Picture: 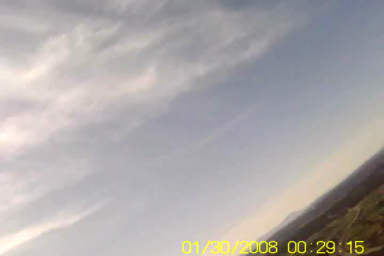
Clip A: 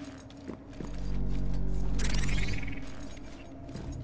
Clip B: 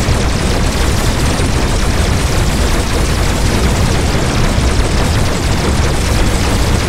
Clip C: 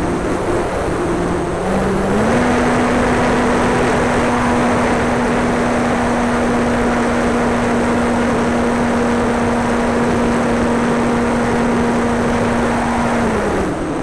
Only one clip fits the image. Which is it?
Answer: C